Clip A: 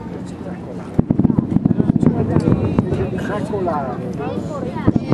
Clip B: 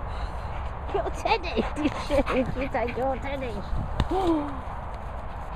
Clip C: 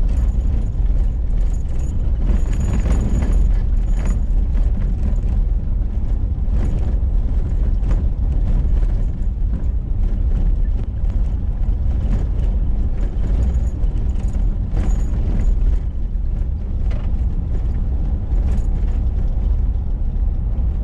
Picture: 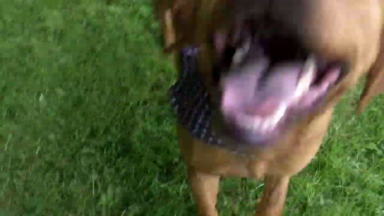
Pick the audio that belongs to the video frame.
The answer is B